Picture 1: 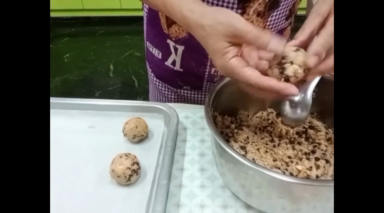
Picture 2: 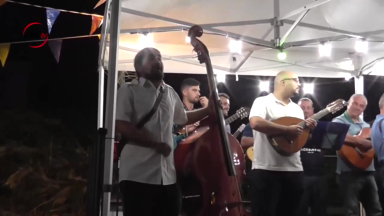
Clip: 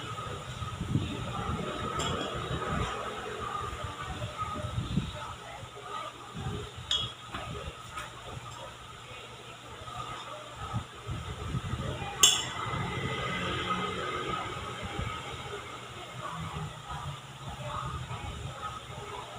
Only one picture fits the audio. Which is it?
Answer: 1